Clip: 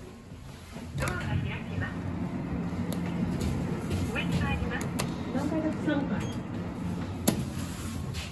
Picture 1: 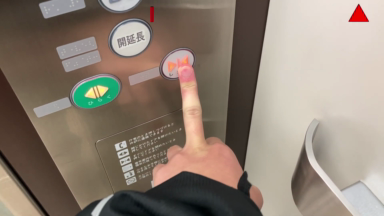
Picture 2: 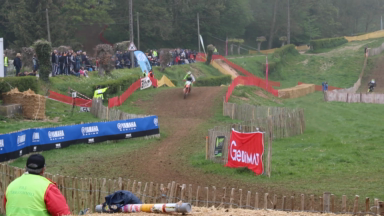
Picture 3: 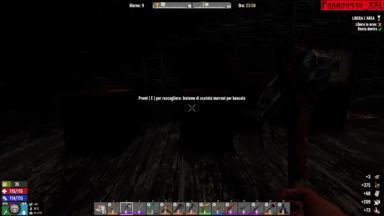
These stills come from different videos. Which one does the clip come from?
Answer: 1